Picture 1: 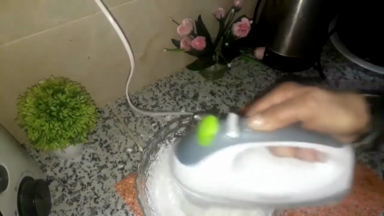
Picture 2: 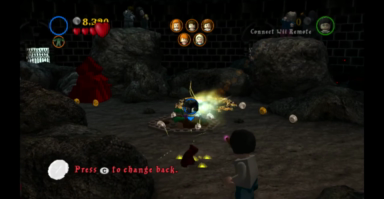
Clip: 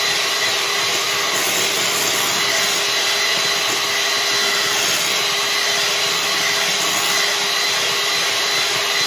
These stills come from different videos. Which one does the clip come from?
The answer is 1